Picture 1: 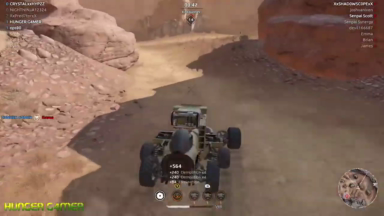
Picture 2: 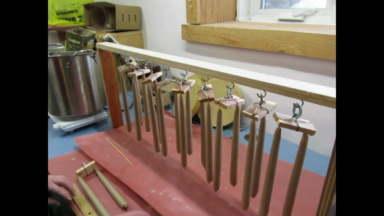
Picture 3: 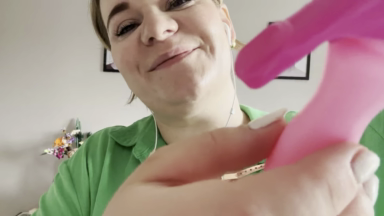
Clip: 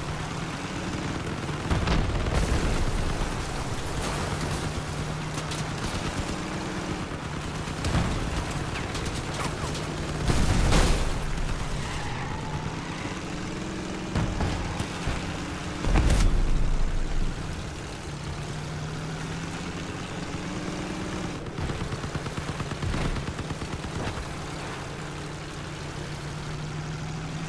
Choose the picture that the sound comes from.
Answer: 1